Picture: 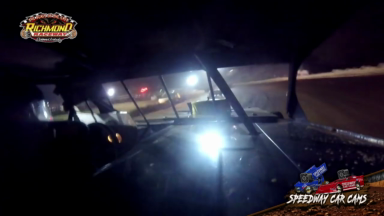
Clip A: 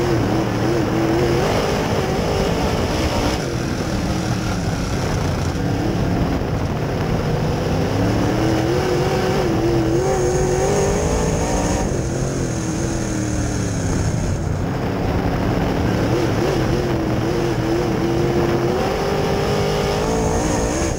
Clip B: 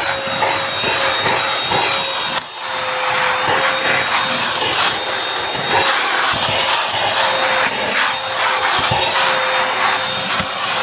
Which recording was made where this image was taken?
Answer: A